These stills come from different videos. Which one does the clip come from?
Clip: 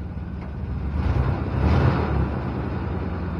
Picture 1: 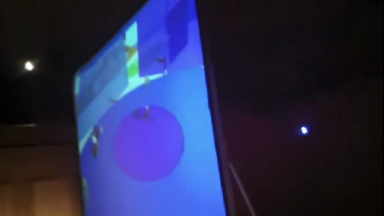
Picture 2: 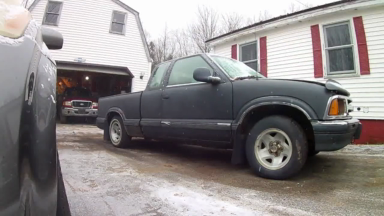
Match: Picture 2